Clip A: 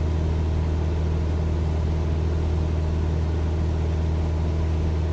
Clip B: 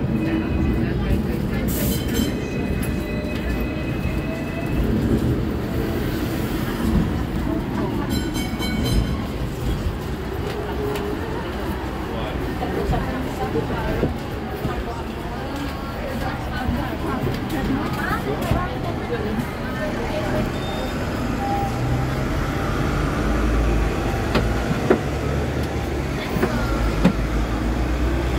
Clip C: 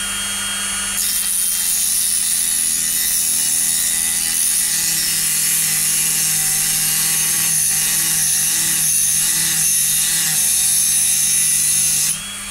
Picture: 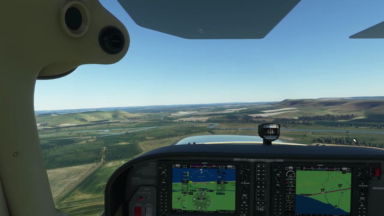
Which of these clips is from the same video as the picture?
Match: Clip A